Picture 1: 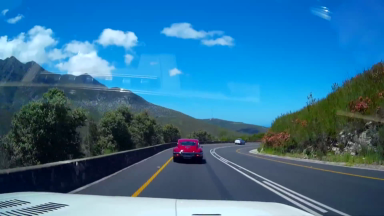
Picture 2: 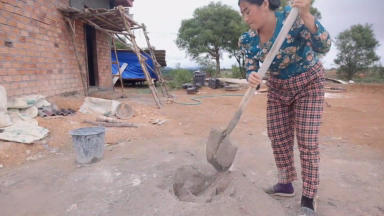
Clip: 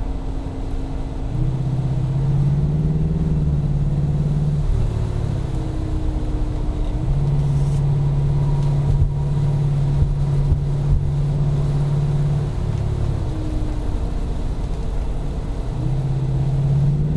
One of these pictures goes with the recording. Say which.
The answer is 1